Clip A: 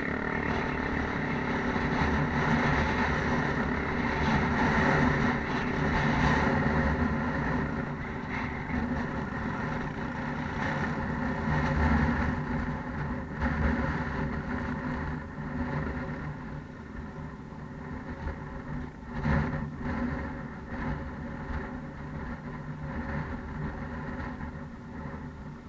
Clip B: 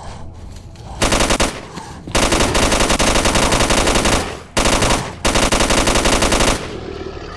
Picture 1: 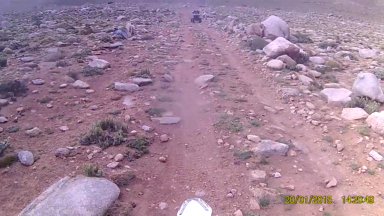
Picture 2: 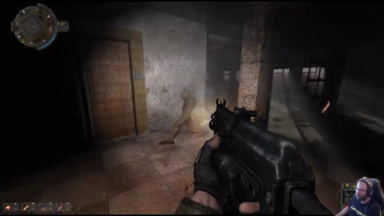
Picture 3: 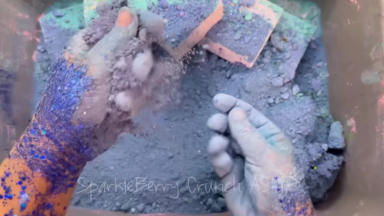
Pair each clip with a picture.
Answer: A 1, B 2